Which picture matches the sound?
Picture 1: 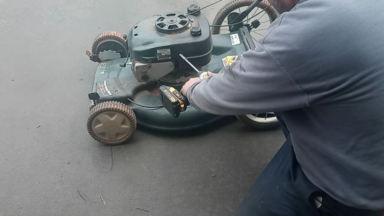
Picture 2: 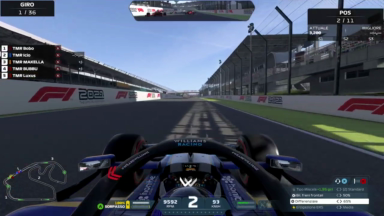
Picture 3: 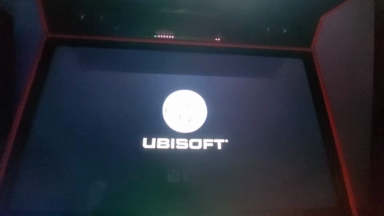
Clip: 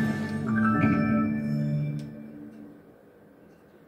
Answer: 3